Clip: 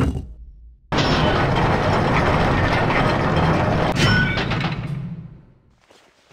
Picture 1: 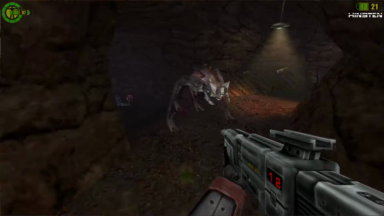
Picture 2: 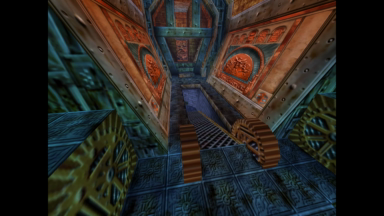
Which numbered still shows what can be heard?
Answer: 2